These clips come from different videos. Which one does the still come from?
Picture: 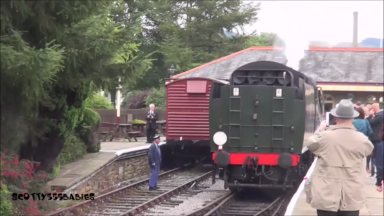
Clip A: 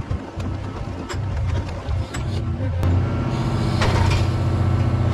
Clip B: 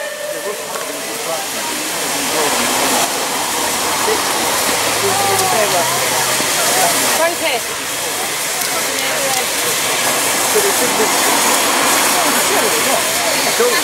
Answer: B